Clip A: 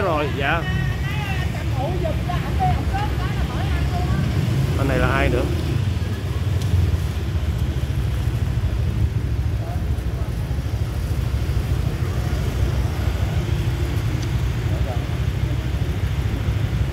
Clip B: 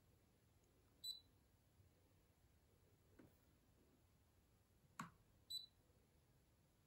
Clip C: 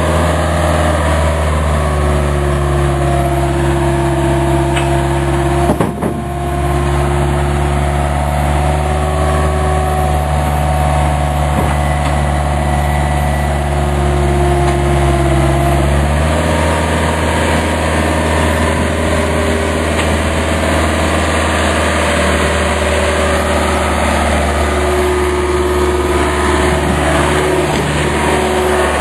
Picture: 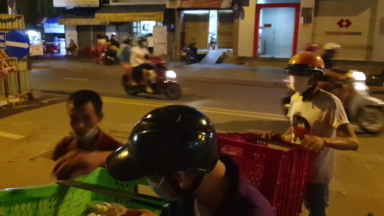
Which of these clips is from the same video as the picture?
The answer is A